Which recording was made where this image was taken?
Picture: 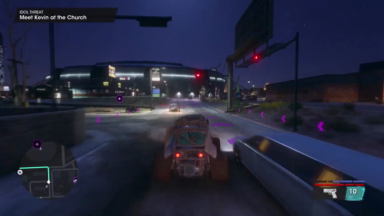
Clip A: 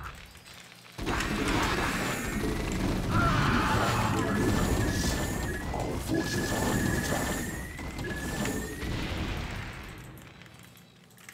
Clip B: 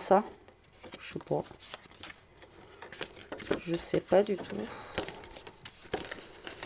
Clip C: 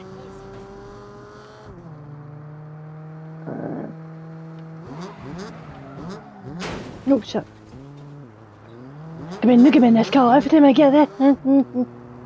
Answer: C